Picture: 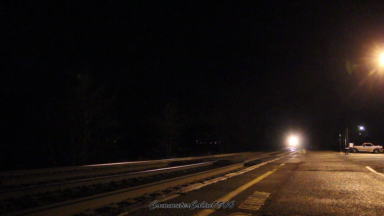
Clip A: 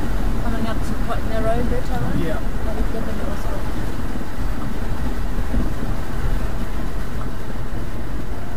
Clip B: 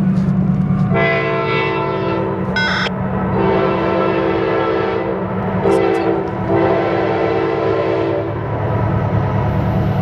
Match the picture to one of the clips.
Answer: B